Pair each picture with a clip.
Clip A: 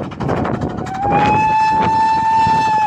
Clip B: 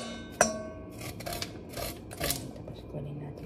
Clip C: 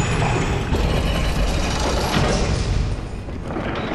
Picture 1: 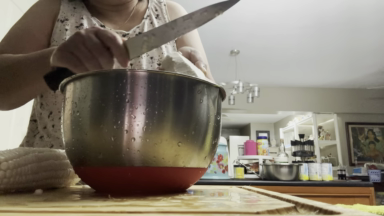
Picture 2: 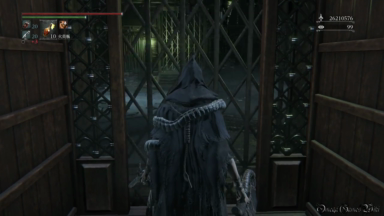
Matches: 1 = B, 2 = C